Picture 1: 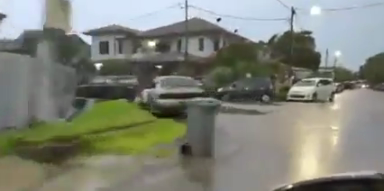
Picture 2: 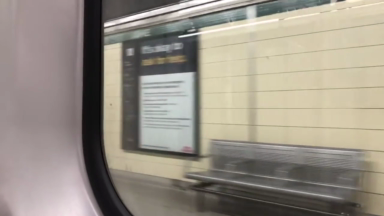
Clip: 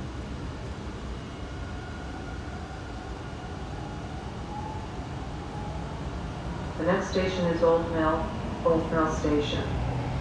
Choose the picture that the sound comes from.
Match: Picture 2